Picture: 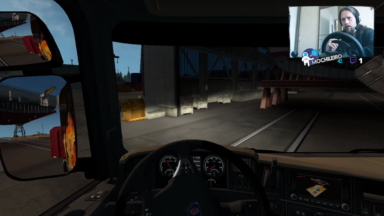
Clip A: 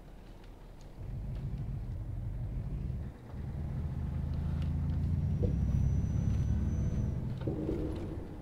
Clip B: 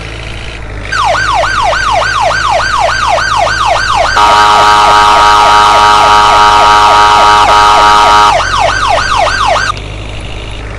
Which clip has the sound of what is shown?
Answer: A